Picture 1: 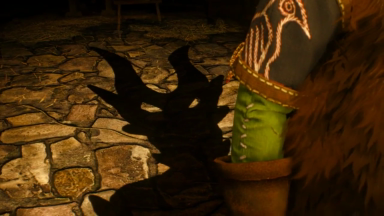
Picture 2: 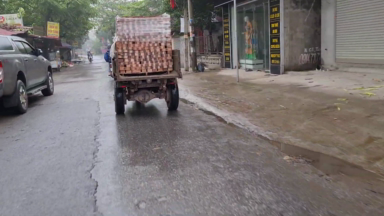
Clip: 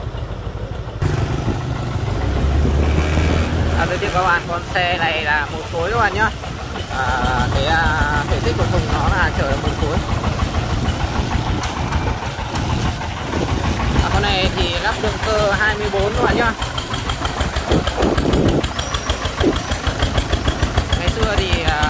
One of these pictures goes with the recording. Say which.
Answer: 2